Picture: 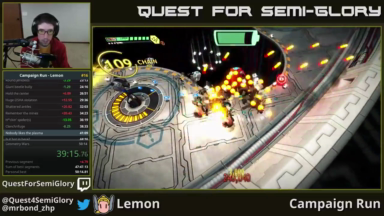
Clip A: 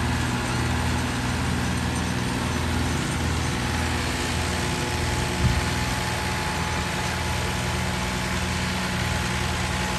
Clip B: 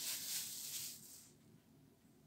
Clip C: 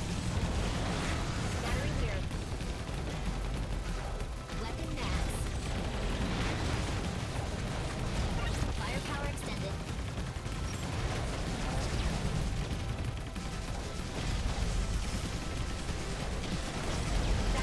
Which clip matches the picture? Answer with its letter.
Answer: C